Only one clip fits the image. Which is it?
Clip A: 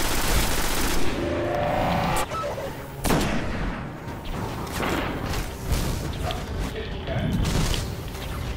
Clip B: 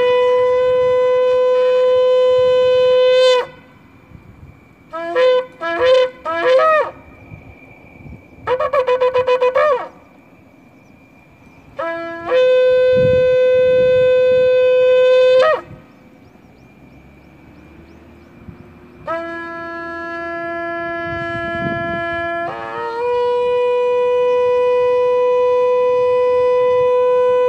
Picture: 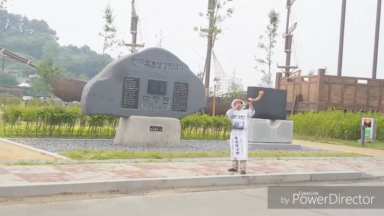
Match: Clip B